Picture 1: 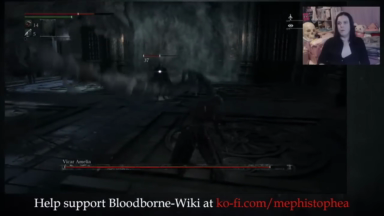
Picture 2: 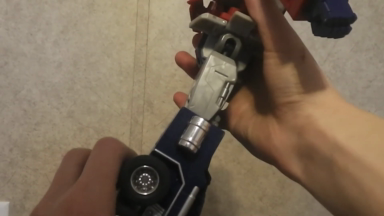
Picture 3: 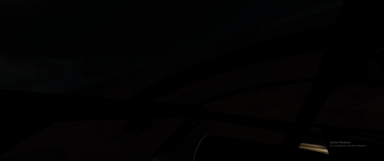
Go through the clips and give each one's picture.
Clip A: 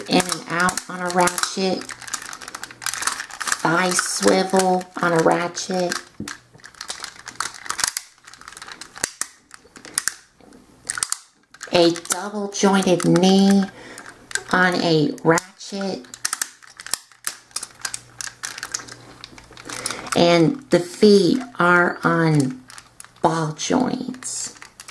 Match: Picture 2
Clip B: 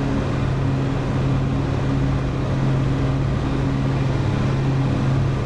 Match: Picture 3